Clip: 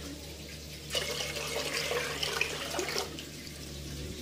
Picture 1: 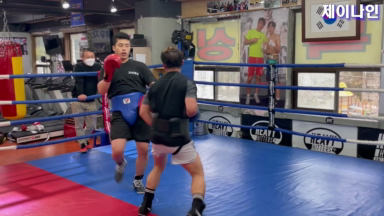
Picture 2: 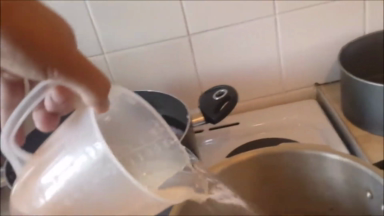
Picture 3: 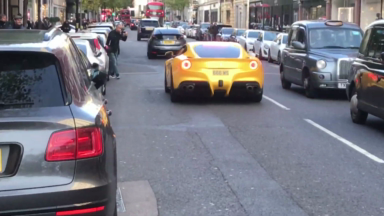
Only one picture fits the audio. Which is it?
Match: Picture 2